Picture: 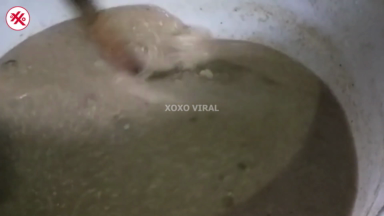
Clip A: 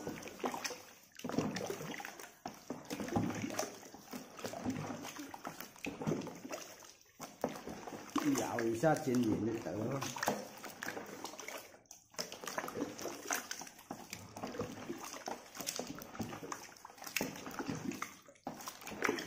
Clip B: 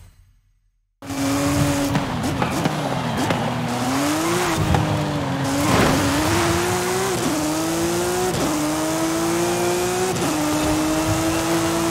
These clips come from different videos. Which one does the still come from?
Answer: A